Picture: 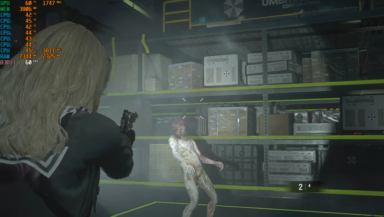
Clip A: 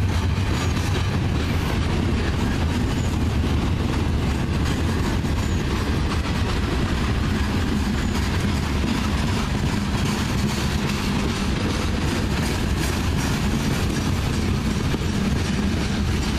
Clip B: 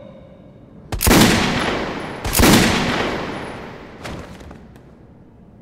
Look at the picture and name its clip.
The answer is B